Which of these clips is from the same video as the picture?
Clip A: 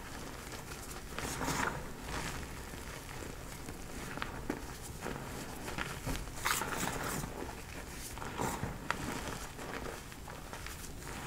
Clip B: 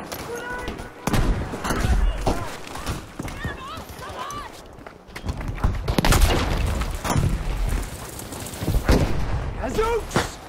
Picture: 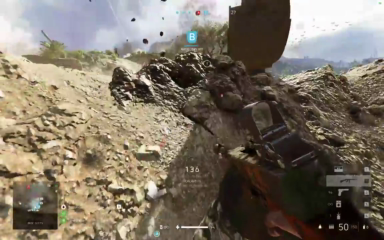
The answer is B